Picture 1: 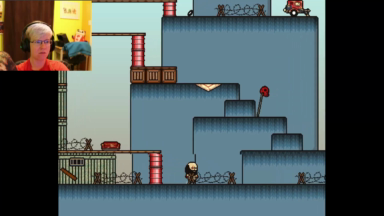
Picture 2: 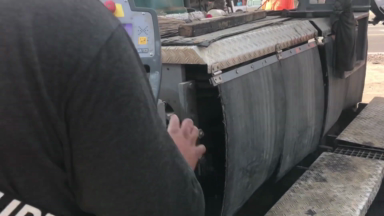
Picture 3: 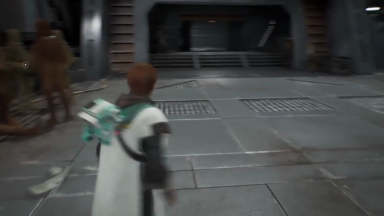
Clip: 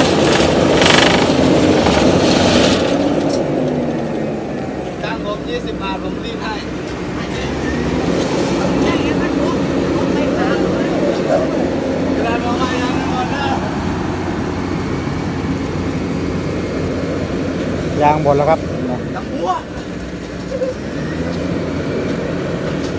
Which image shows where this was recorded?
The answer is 2